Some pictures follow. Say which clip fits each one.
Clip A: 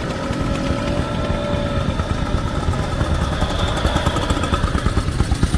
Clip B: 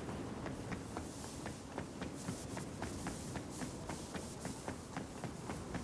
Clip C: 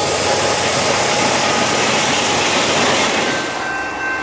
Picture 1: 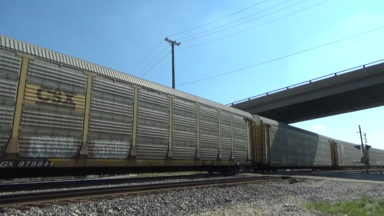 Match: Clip C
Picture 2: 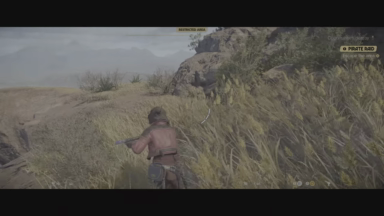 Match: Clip B